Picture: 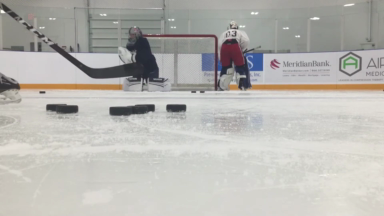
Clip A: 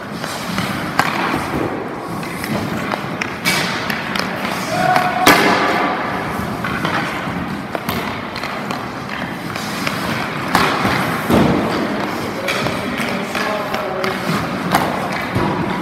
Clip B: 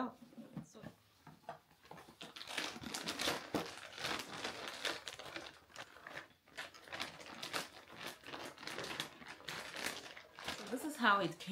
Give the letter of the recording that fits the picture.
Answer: A